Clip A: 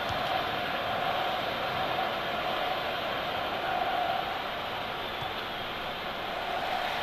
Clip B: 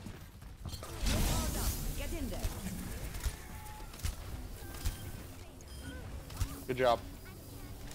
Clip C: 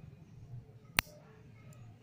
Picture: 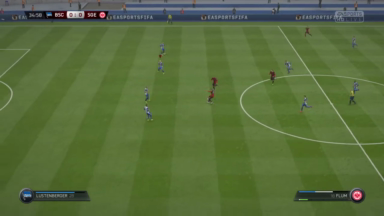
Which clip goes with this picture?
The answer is A